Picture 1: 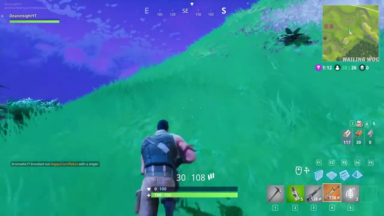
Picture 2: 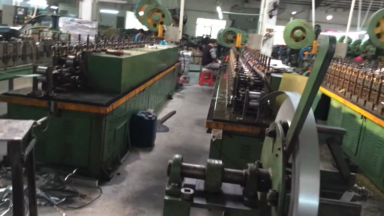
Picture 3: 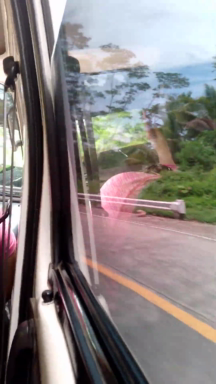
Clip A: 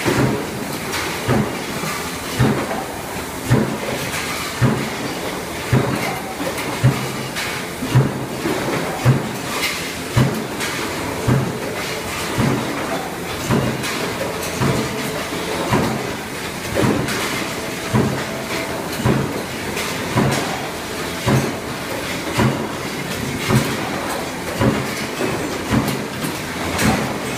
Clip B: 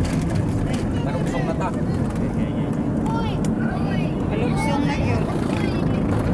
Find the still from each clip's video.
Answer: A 2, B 3